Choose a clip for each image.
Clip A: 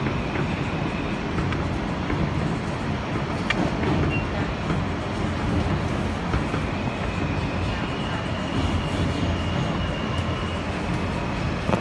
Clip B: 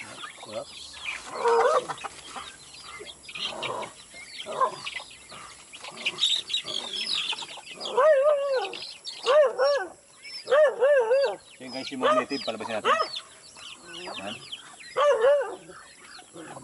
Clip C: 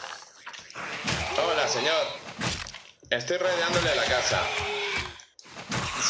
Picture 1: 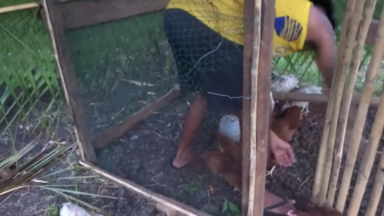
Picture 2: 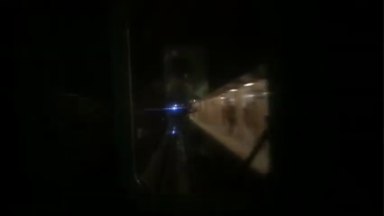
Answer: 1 B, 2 A